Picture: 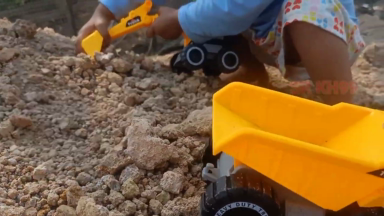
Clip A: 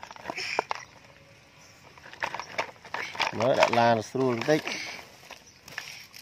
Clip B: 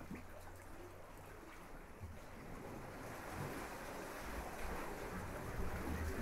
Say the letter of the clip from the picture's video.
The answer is A